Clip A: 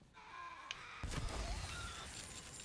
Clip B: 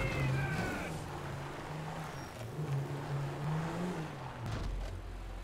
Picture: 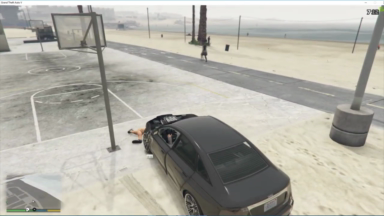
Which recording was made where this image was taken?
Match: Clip B